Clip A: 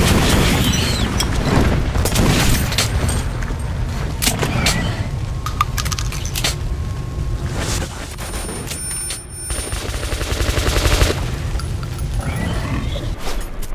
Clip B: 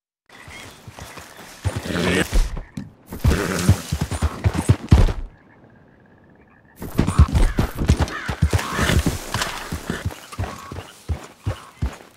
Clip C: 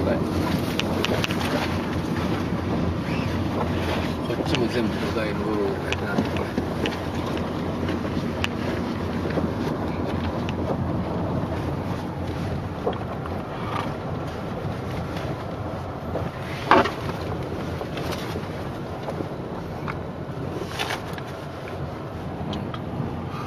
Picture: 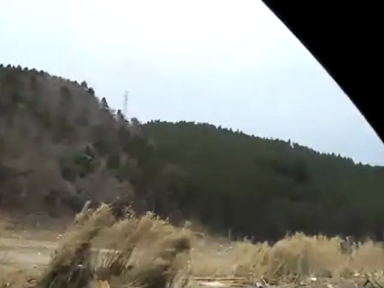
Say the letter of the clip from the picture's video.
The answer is C